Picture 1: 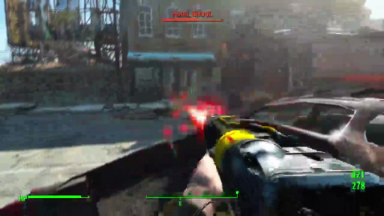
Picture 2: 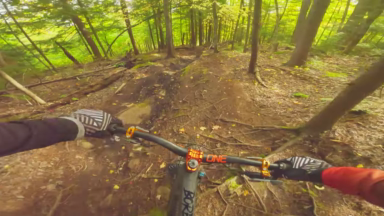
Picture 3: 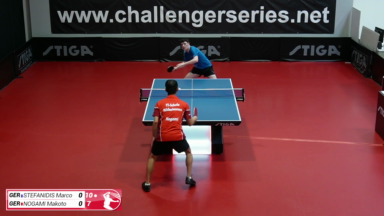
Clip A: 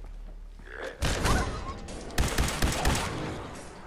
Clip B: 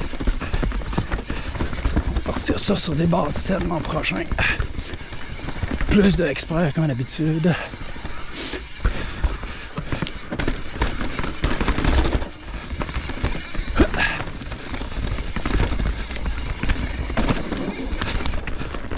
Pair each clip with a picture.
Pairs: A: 1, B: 2